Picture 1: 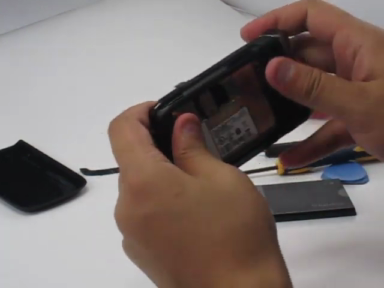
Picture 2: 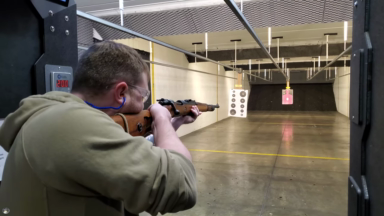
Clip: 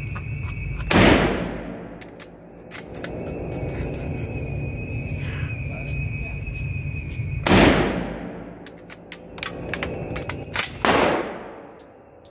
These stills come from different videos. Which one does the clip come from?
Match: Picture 2